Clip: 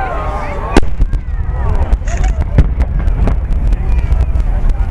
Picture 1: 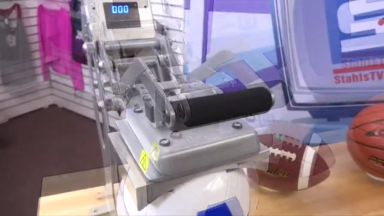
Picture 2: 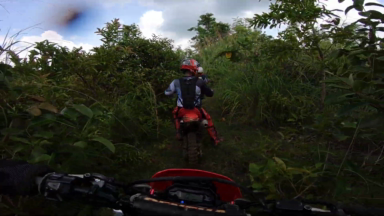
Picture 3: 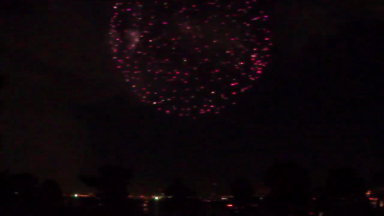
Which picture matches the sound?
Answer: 3